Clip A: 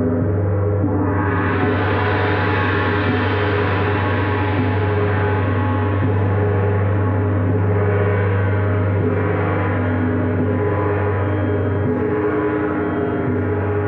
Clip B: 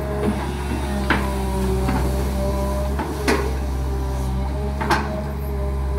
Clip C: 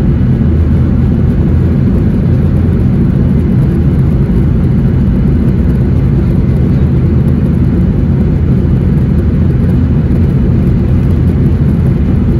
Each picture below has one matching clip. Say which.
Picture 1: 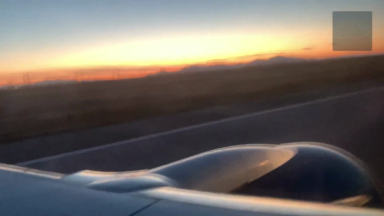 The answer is C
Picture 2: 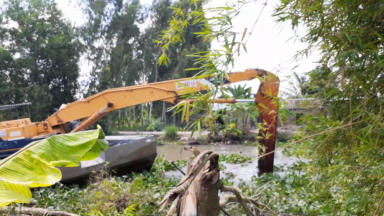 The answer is B